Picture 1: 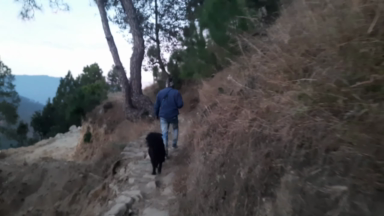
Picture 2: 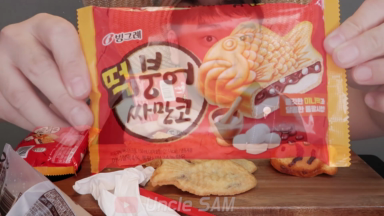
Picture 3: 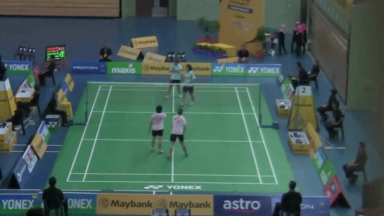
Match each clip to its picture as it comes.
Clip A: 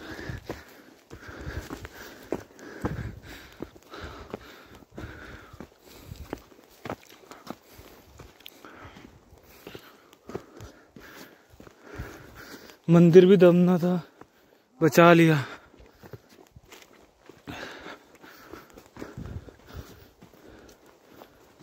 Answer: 1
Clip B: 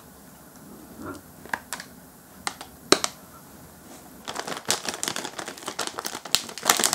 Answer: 2